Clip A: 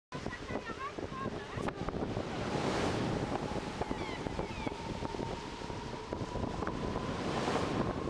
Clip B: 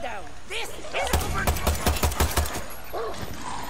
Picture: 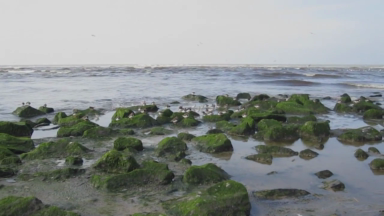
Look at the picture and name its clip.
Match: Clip A